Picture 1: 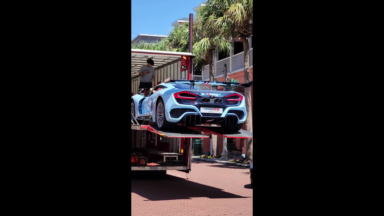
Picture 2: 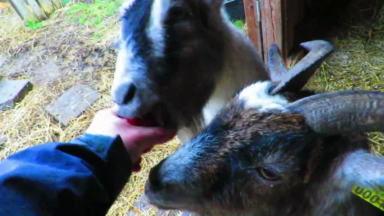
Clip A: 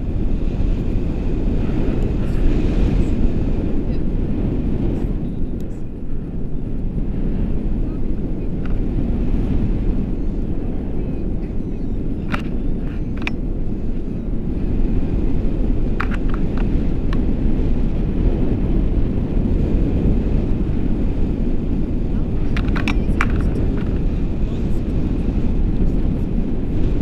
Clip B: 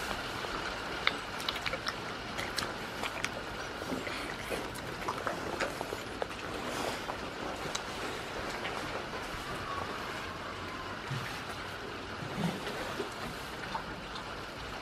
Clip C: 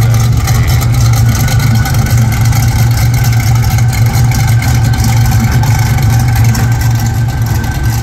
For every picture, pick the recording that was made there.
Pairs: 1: C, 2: B